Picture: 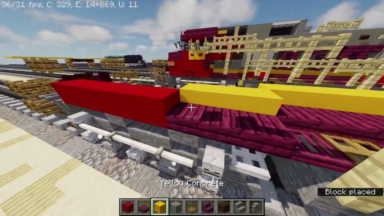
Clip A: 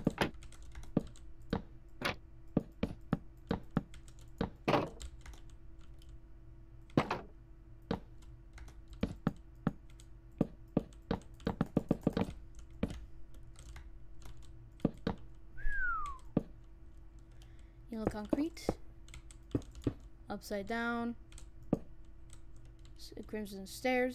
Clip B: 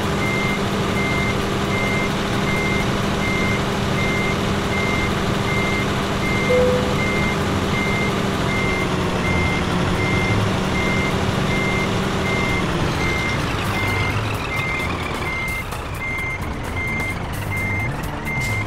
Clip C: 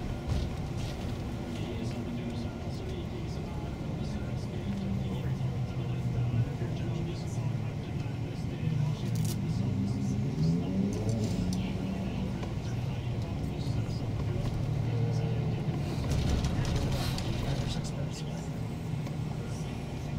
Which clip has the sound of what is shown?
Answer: A